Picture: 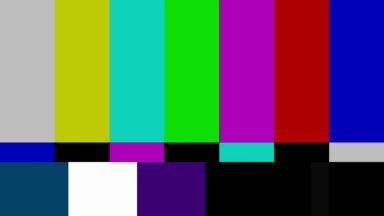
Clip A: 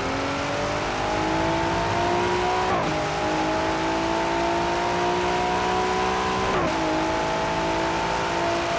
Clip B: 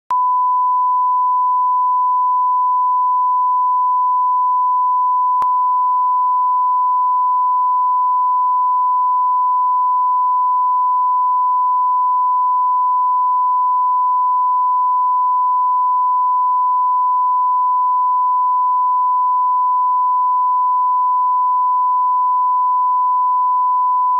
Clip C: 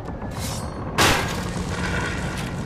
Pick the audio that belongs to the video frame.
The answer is B